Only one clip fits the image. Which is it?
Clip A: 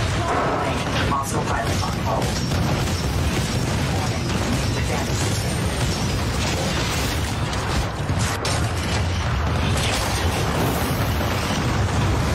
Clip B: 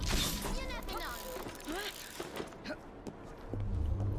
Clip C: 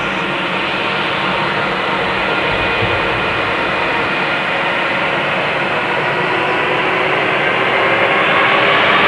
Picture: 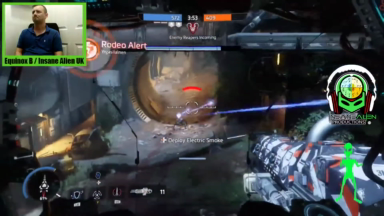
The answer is A